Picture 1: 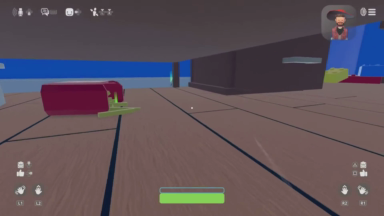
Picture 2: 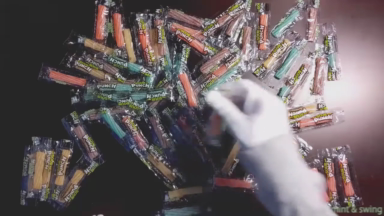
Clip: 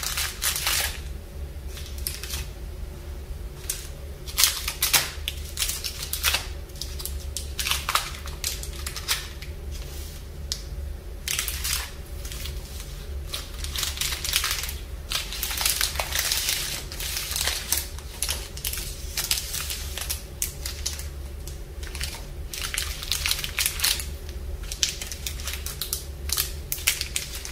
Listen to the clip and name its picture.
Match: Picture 2